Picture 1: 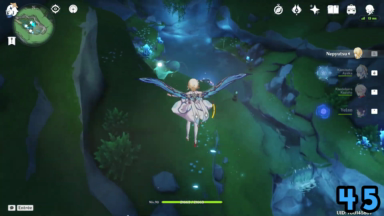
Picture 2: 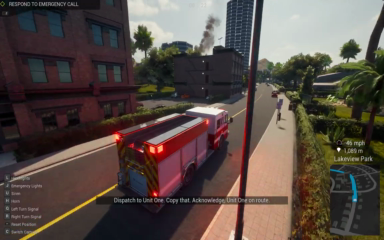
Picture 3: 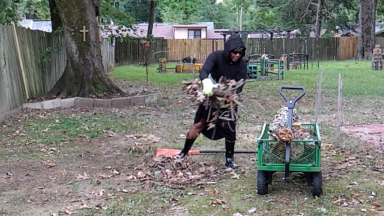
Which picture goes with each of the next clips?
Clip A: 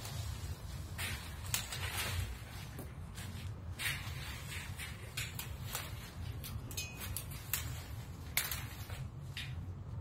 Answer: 3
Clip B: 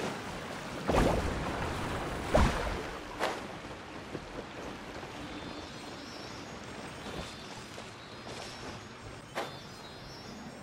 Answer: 1